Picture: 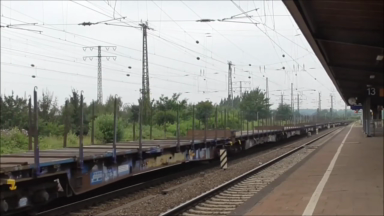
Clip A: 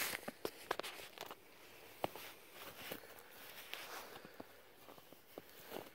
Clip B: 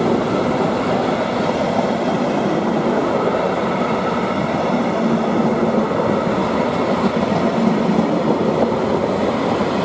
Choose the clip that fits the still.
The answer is B